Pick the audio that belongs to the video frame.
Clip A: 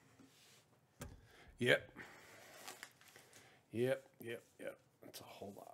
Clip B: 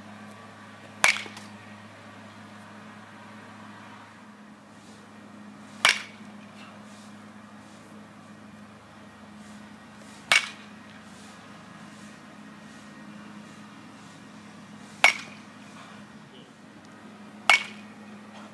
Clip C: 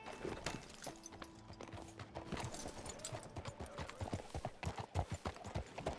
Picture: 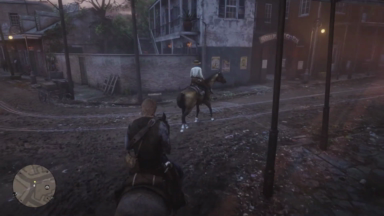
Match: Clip C